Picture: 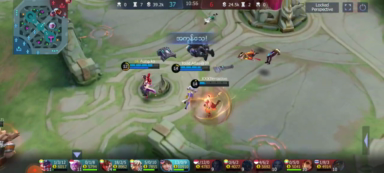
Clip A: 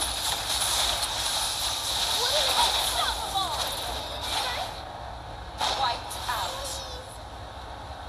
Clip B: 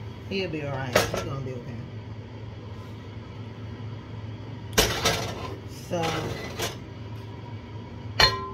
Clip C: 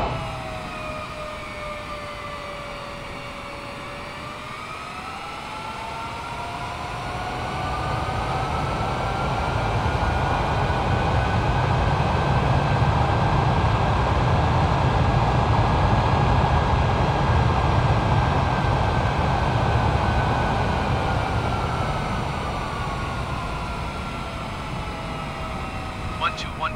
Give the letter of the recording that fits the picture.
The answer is A